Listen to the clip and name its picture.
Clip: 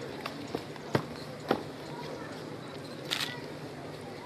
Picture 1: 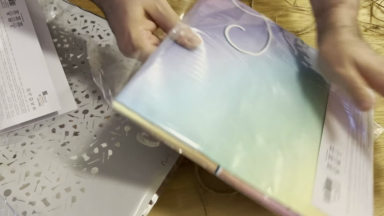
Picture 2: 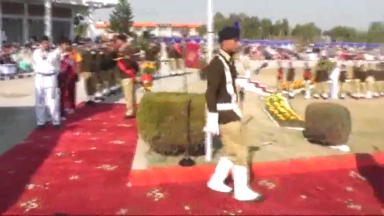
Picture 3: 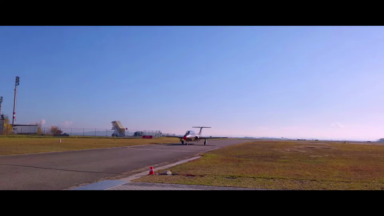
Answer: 2